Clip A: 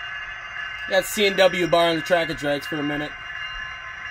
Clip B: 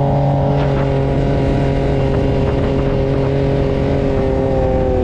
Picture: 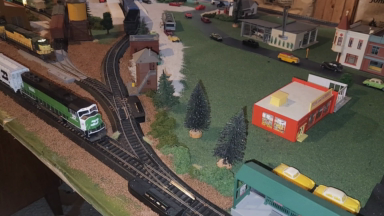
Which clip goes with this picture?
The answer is A